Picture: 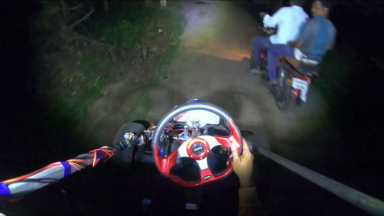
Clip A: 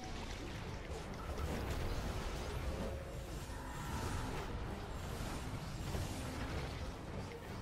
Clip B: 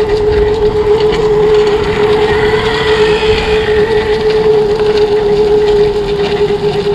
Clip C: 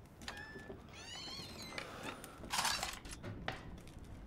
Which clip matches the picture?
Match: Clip B